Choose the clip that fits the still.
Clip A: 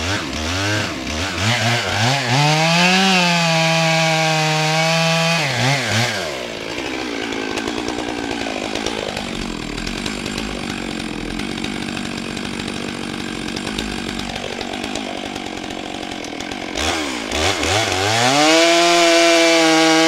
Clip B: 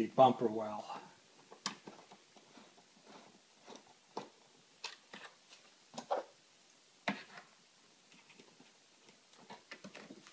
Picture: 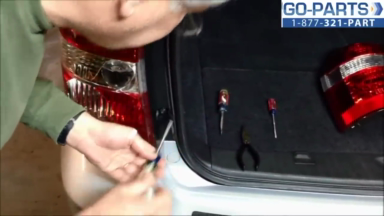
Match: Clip B